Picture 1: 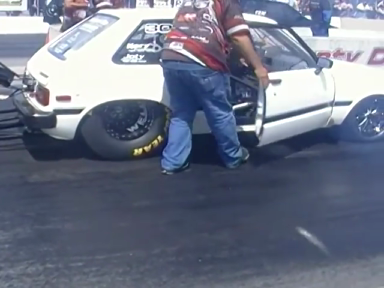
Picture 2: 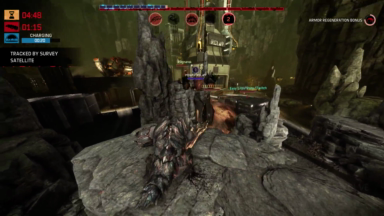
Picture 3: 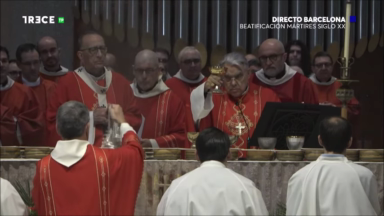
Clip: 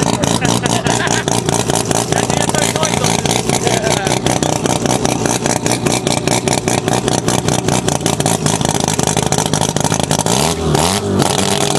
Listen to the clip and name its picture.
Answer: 1